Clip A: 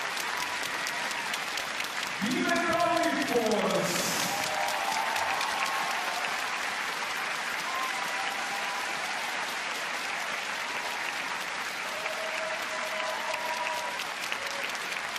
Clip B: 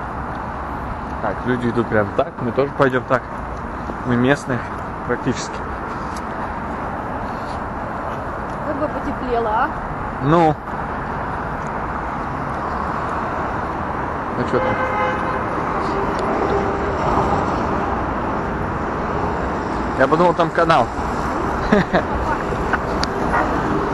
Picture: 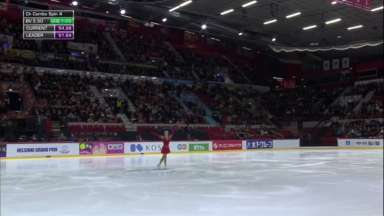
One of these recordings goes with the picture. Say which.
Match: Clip A